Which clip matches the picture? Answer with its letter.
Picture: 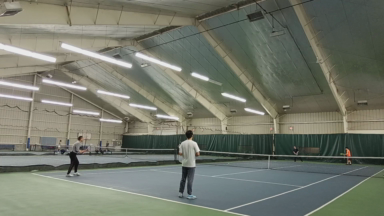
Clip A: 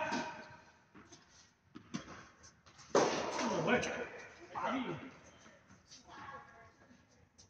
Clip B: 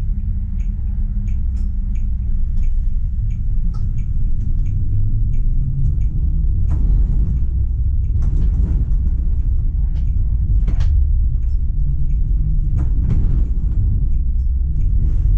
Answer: A